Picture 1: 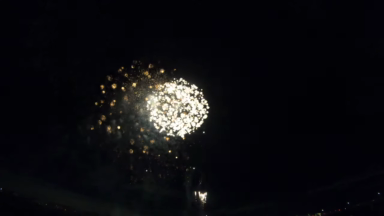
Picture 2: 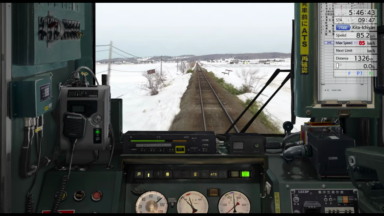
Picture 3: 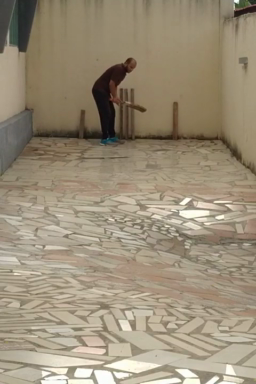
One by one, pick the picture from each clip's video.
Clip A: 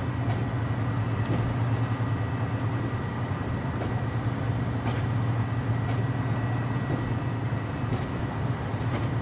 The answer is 2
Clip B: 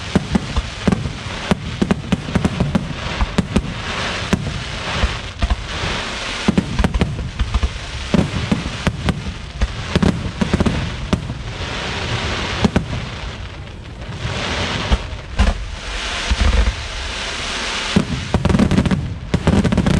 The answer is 1